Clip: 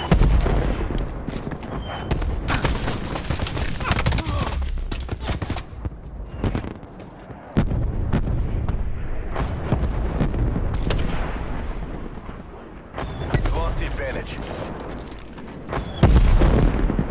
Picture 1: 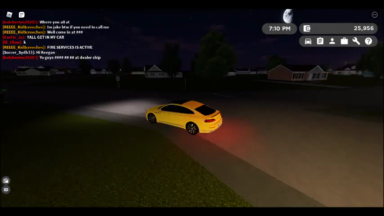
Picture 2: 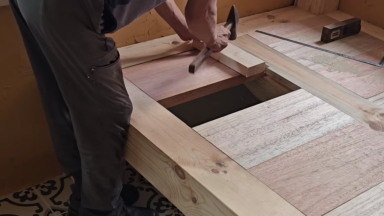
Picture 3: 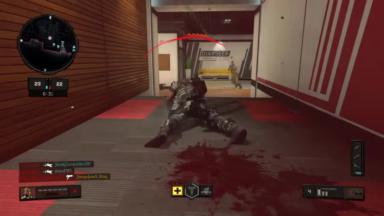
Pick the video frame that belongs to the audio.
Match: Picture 3